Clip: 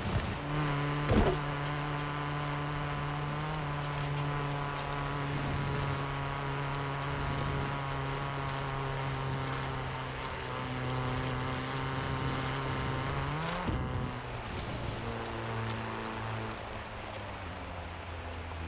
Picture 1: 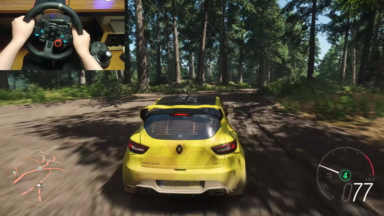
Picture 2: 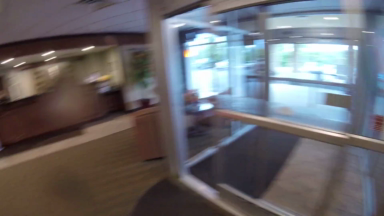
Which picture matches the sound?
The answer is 1